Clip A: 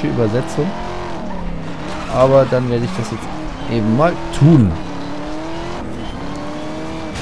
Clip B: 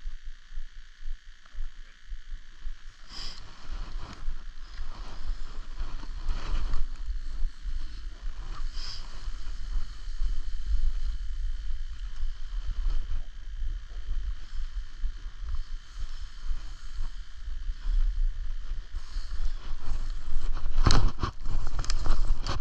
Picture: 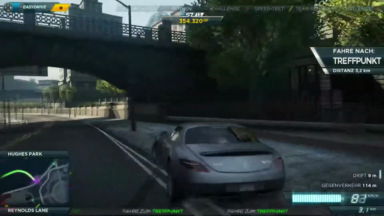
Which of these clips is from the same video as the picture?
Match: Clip A